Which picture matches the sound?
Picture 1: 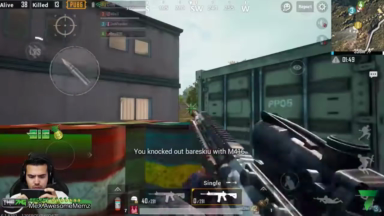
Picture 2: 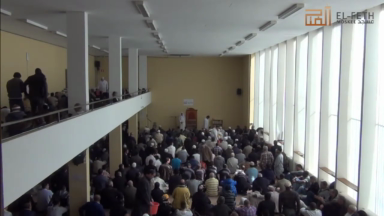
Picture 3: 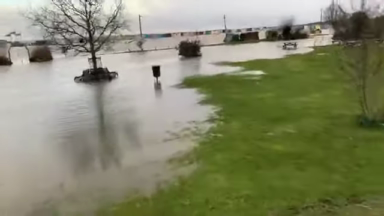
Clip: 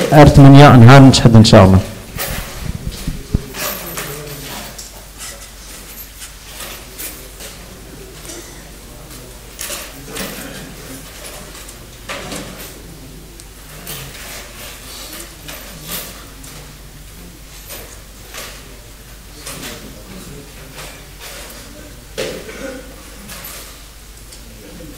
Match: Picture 2